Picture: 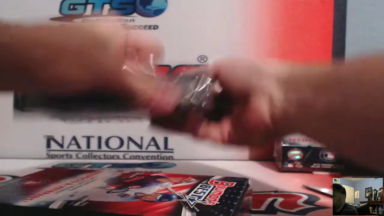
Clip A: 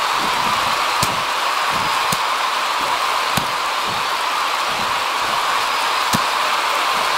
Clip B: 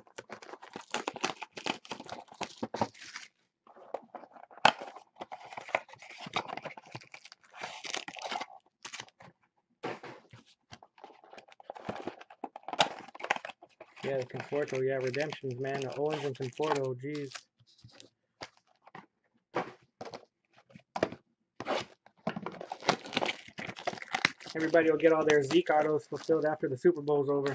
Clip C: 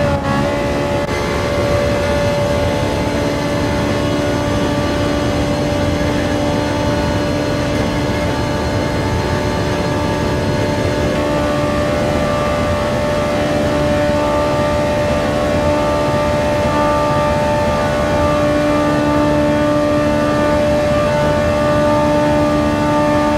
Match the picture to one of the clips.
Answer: B